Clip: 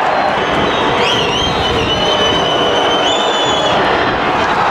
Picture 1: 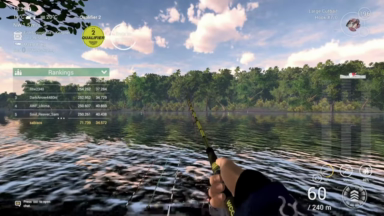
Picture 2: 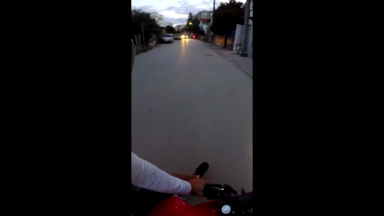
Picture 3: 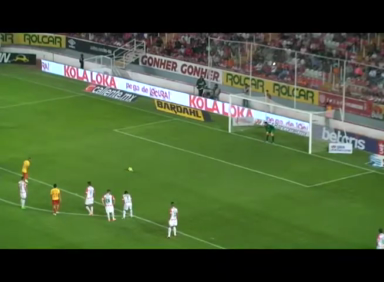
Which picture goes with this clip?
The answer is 3